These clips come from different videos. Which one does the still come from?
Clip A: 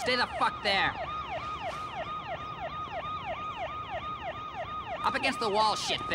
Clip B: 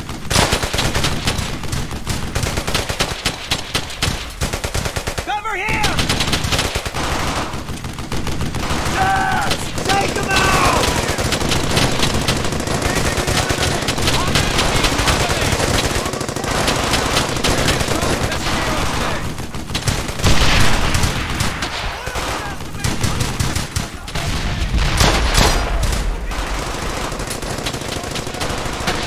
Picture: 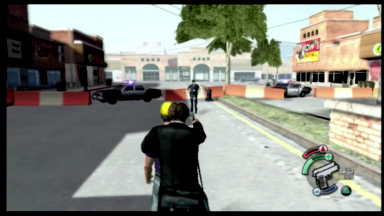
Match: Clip A